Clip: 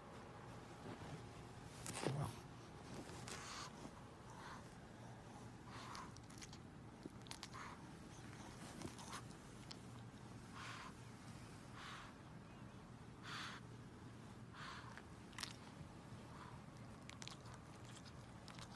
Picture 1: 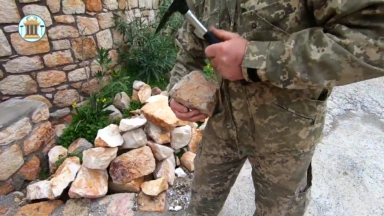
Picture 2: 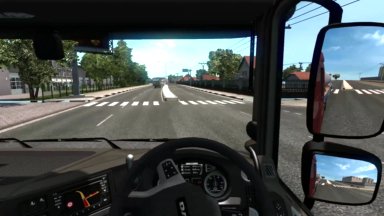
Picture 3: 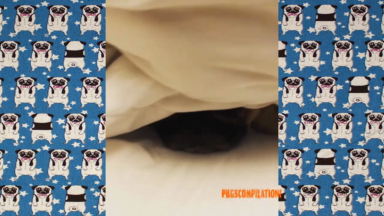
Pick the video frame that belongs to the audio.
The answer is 3